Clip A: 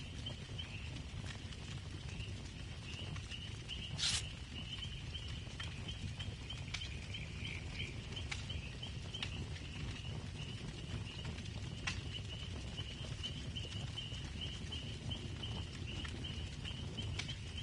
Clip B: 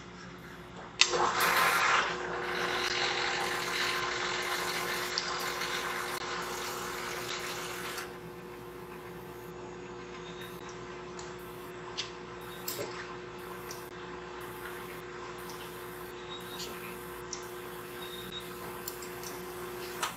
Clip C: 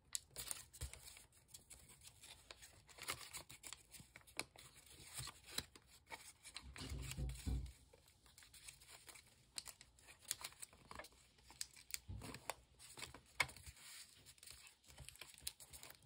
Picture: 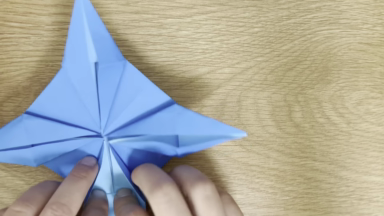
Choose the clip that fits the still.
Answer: C